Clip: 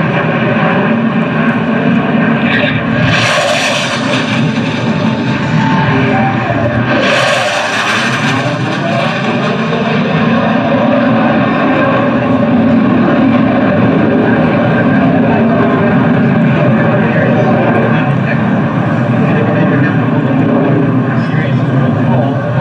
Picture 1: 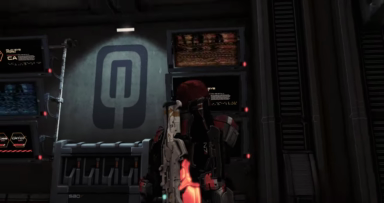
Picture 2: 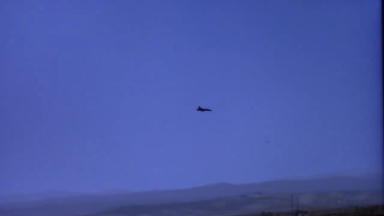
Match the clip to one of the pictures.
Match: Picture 2